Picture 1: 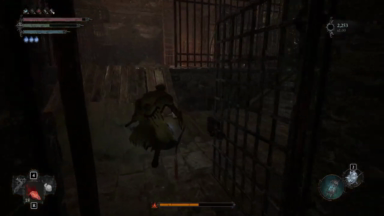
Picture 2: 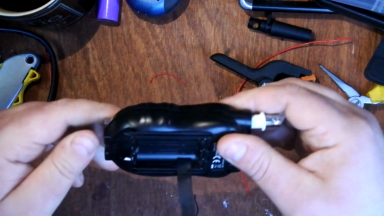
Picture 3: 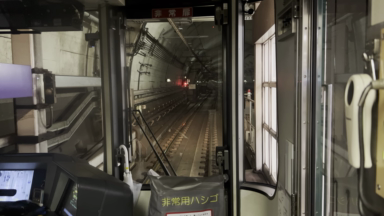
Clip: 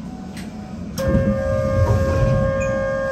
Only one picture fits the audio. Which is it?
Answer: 3